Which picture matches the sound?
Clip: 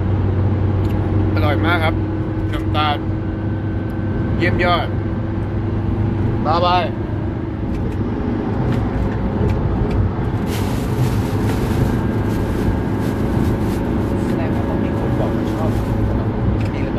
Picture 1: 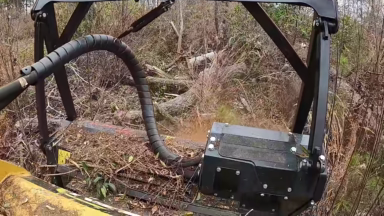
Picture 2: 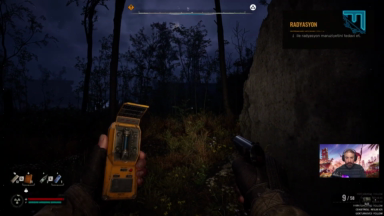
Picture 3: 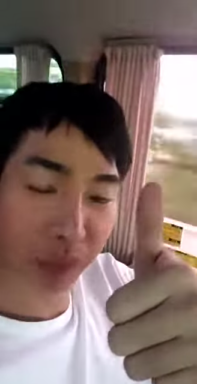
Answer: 3